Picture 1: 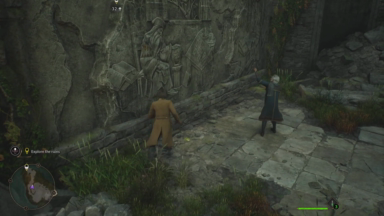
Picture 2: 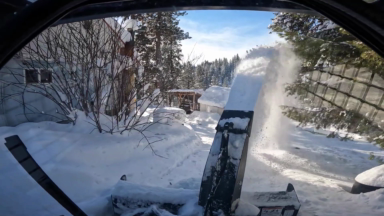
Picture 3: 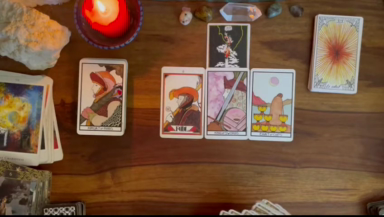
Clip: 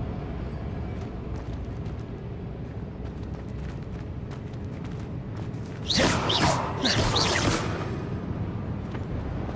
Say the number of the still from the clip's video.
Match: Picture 1